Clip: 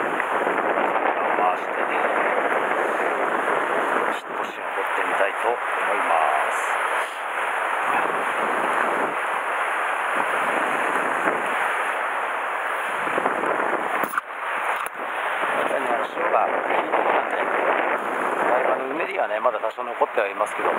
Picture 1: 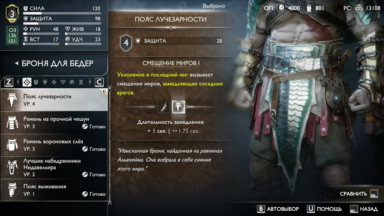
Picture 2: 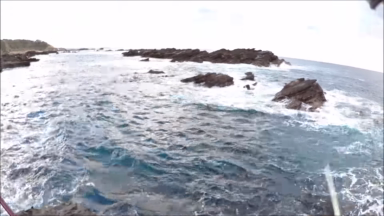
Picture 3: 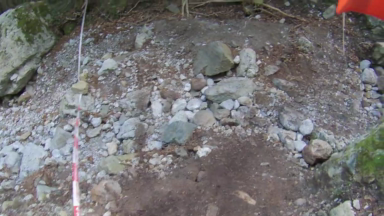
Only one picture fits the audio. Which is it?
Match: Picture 2